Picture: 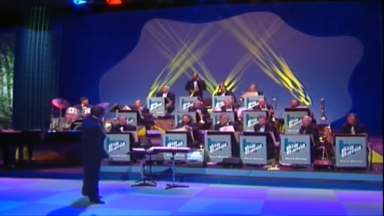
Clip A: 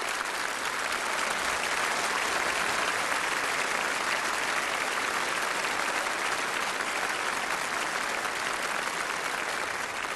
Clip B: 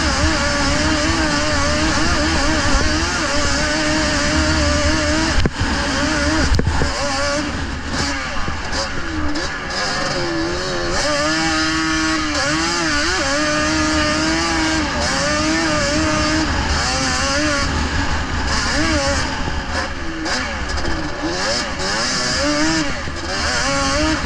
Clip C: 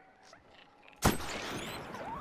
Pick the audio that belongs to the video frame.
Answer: A